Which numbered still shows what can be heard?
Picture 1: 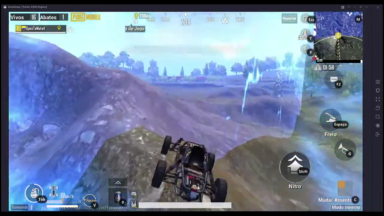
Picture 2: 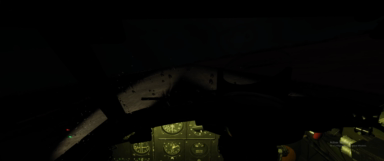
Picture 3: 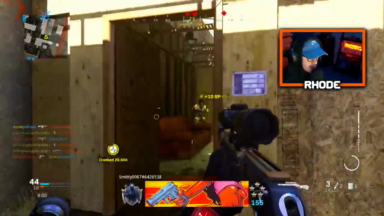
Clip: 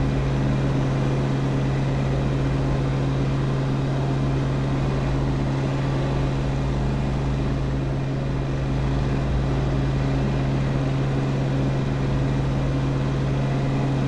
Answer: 2